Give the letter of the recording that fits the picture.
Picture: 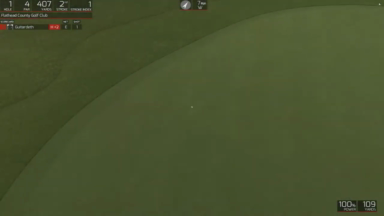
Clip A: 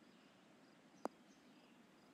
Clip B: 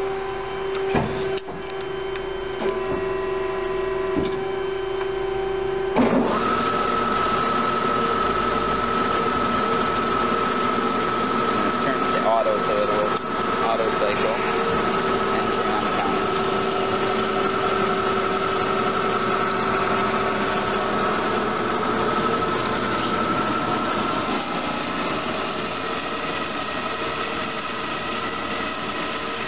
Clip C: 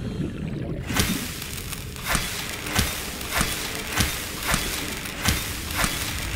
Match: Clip A